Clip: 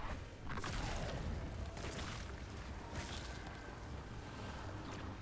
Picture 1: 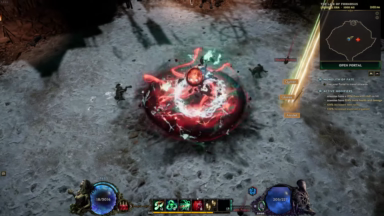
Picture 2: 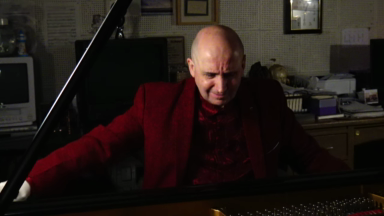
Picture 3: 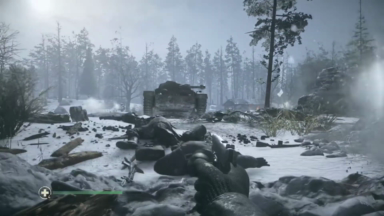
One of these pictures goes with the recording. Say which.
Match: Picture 1